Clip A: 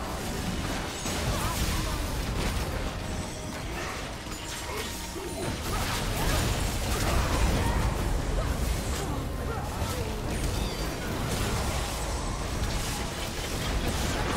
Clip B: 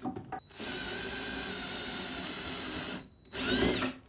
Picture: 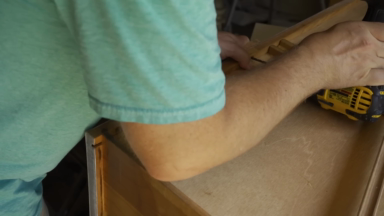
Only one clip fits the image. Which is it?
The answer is B